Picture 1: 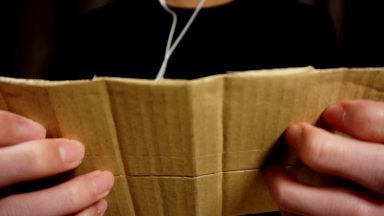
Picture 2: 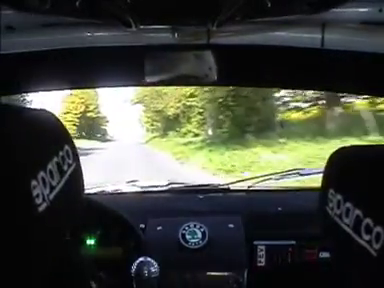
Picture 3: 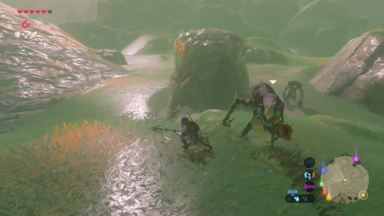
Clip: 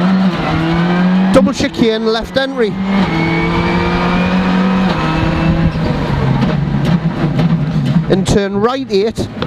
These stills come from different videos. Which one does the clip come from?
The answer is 2